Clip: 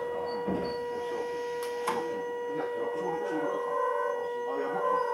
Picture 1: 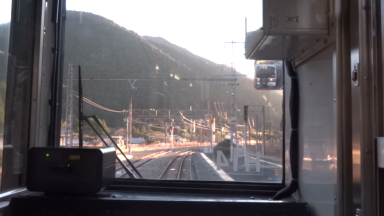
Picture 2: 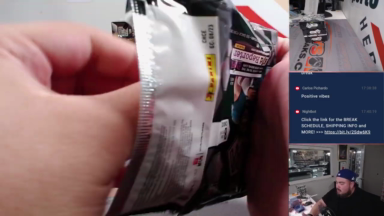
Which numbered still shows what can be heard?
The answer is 1